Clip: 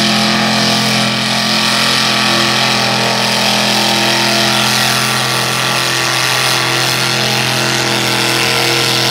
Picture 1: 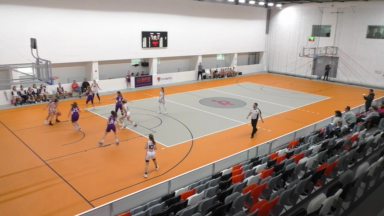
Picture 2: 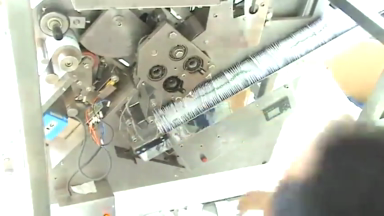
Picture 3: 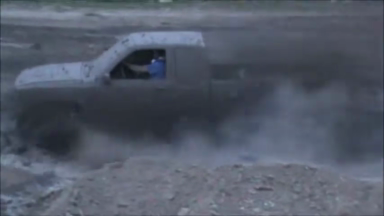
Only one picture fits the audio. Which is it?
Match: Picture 3